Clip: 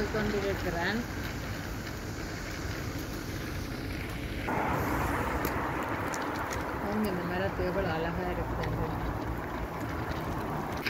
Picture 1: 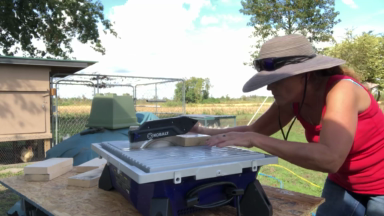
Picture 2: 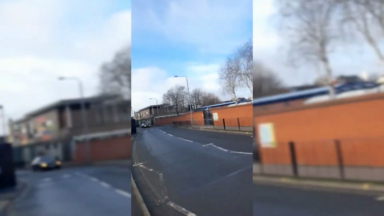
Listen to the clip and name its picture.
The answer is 2